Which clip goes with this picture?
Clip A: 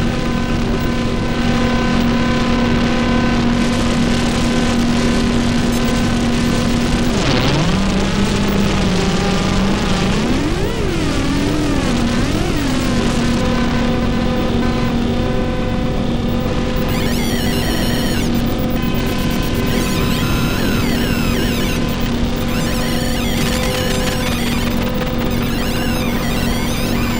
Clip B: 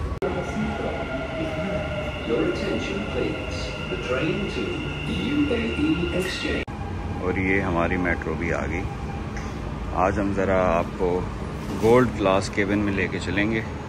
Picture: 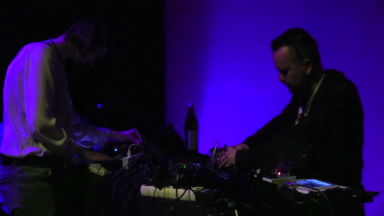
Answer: A